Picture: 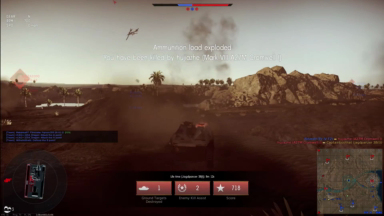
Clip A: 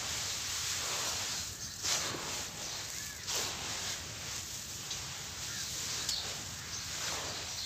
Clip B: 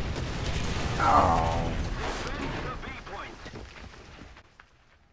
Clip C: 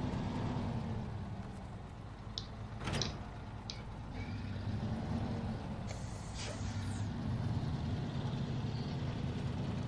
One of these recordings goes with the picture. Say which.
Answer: B